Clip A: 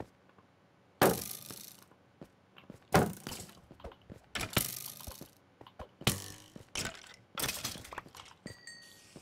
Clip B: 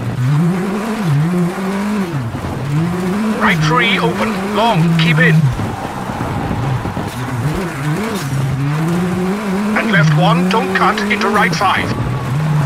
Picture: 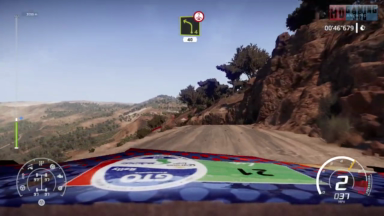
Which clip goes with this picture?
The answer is B